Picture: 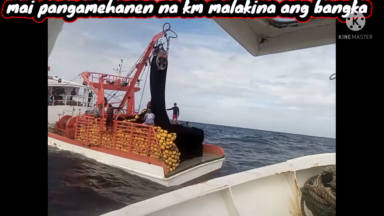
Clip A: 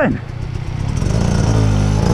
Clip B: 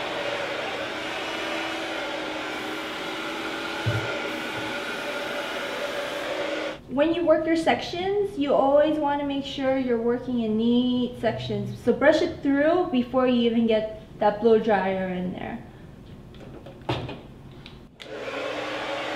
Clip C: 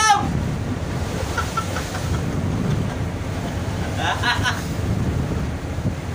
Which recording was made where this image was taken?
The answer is C